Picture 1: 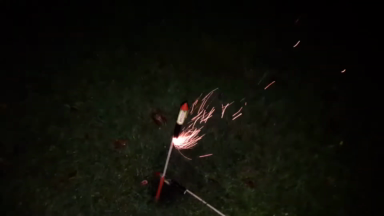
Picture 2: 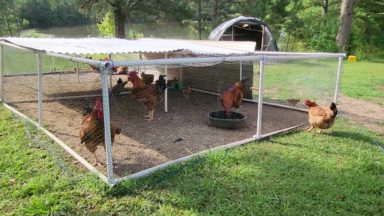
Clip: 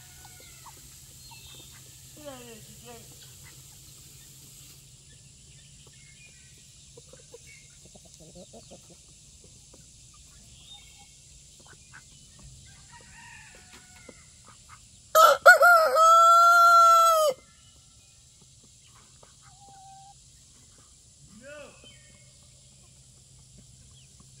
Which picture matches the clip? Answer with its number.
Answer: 2